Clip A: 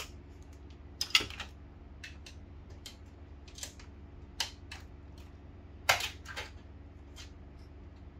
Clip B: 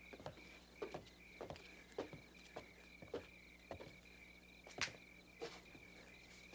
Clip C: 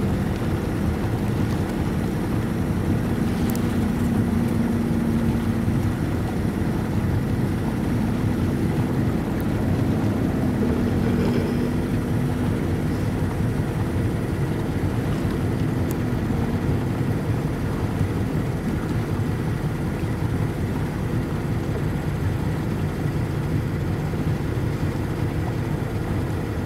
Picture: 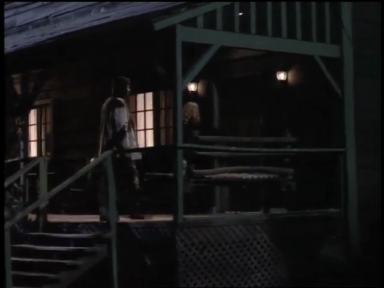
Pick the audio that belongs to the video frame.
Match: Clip B